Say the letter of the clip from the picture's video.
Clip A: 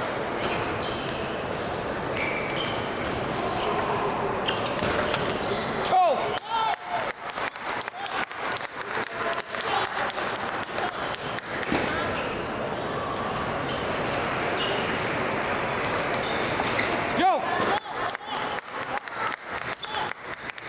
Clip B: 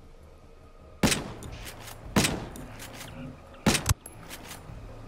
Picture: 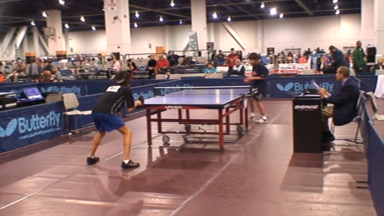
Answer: A